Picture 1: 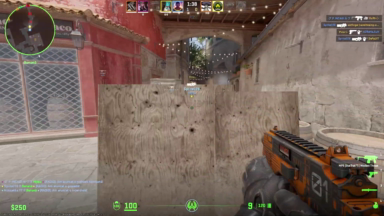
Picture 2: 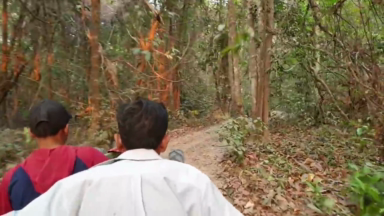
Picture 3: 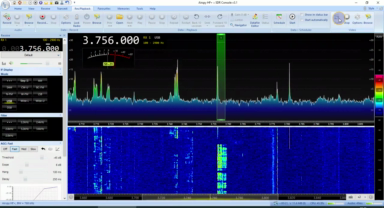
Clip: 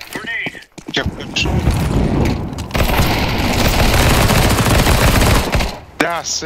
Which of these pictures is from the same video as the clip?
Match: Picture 1